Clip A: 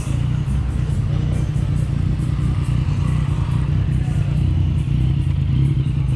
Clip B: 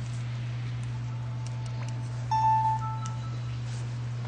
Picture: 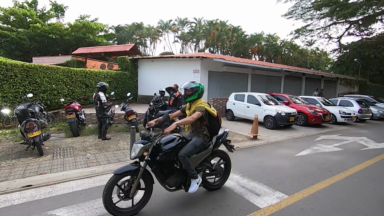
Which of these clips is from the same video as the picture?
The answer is A